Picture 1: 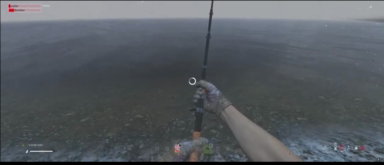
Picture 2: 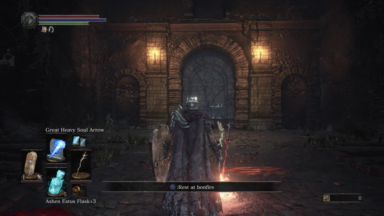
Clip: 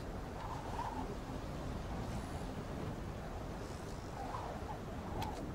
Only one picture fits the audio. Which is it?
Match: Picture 1